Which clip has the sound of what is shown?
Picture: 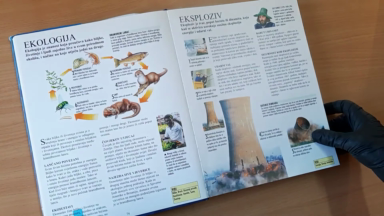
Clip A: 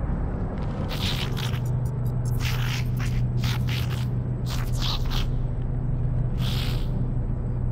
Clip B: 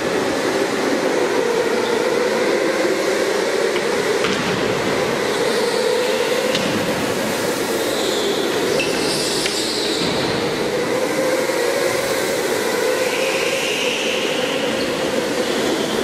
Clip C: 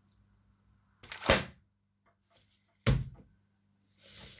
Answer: C